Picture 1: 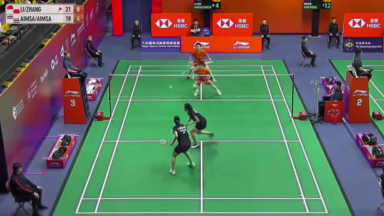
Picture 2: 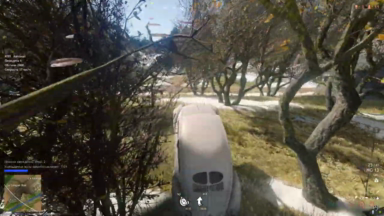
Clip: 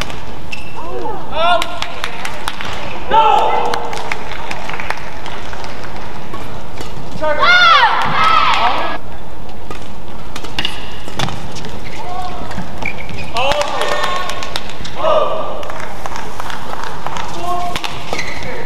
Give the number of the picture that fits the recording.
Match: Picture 1